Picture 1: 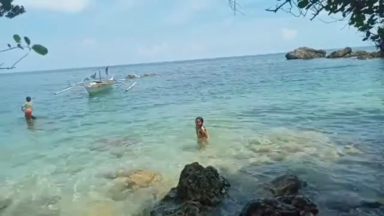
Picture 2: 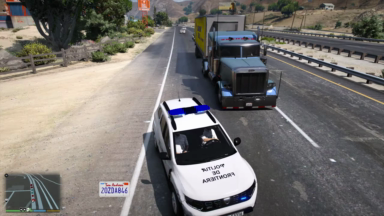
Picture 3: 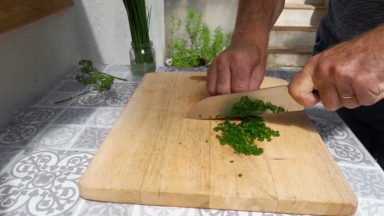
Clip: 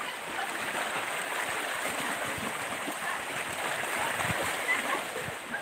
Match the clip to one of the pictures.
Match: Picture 1